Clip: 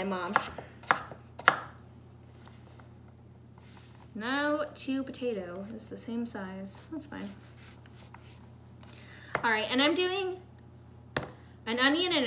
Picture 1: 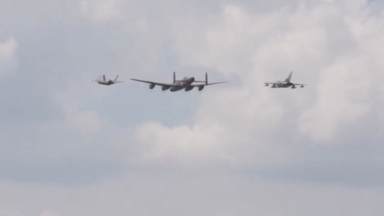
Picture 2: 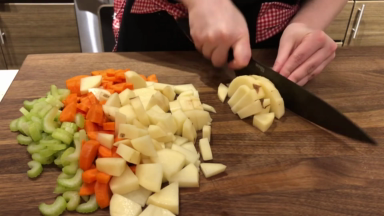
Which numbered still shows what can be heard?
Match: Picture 2